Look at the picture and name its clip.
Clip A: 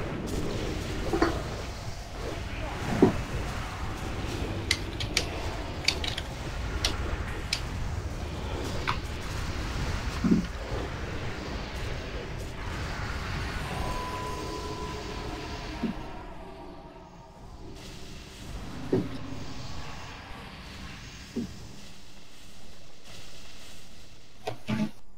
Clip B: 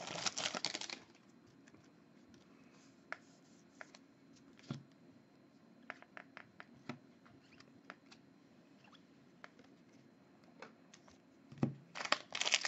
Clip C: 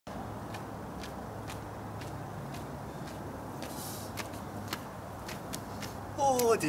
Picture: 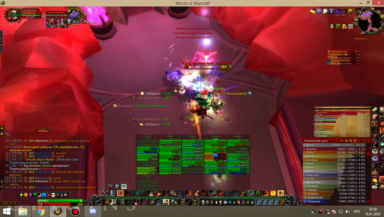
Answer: A